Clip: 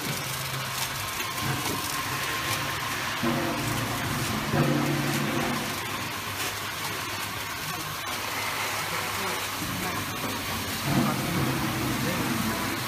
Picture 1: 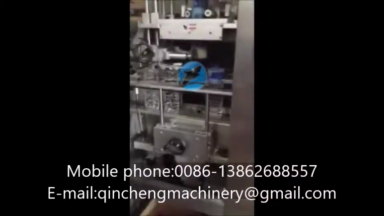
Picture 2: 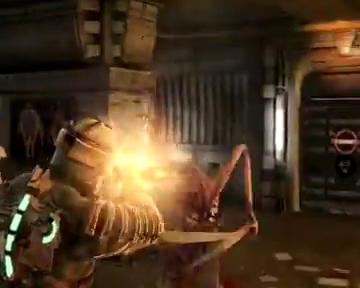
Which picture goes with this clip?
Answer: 1